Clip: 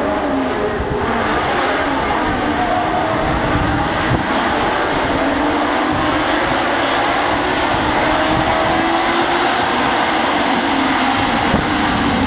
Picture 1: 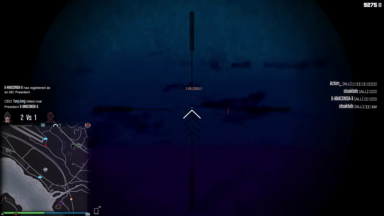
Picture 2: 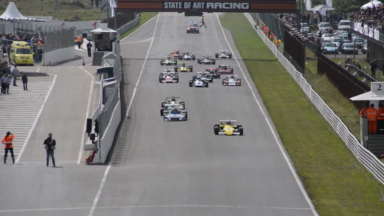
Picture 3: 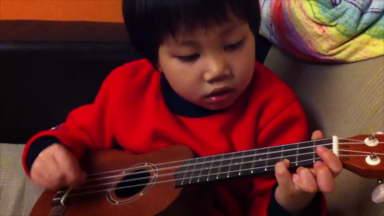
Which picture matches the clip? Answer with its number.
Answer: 2